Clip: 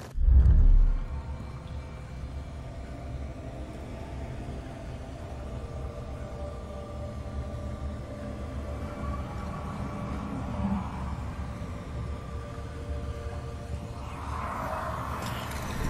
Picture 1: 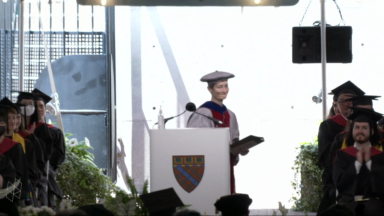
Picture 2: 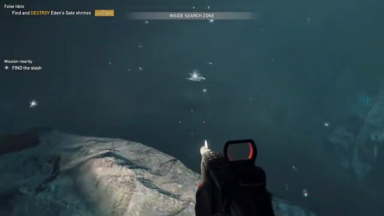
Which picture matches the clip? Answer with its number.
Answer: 2